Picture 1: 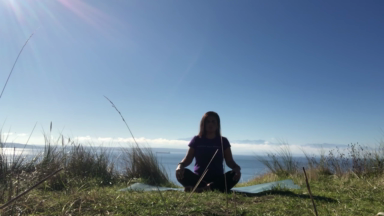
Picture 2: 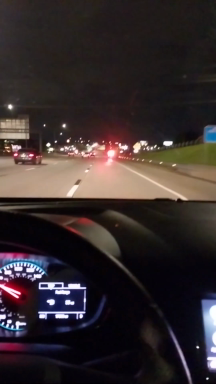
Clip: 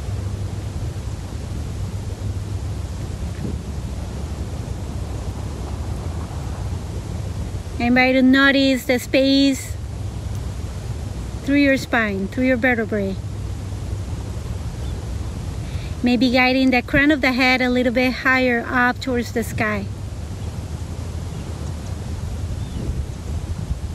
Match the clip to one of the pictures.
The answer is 1